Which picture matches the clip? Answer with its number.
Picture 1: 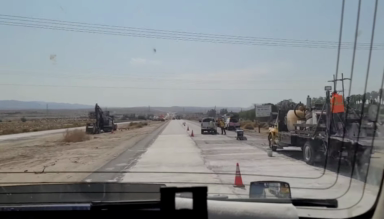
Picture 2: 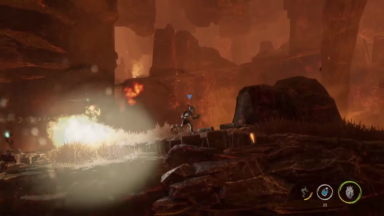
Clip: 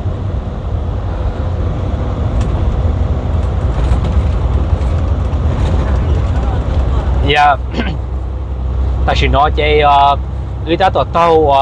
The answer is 1